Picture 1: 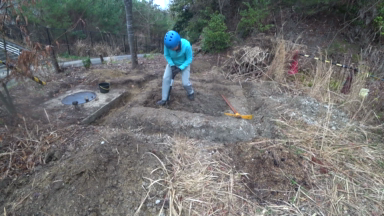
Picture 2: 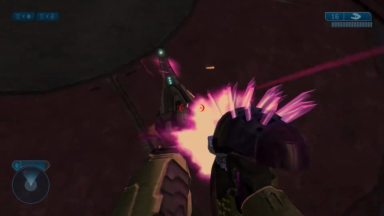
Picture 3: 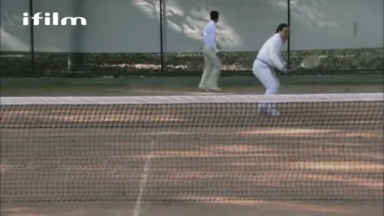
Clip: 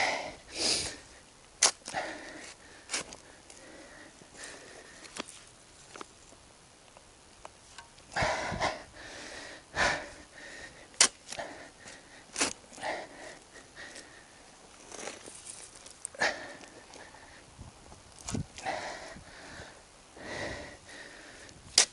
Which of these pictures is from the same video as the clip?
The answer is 1